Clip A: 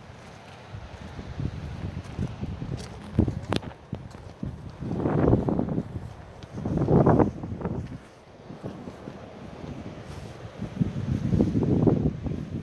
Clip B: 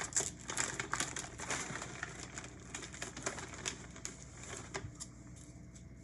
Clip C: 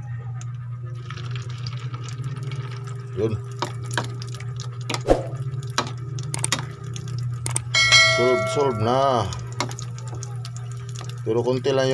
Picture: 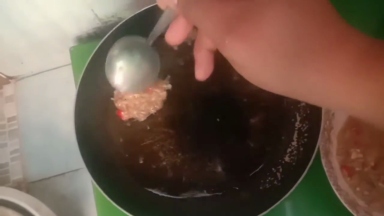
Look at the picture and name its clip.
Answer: C